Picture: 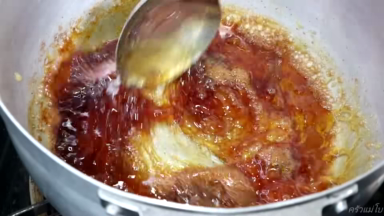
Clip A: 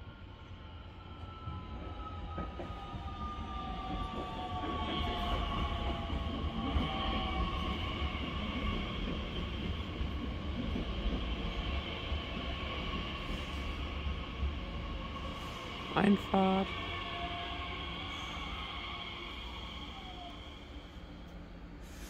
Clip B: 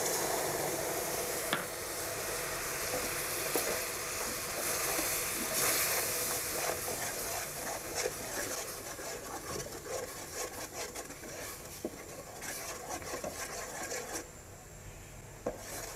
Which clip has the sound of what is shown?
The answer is B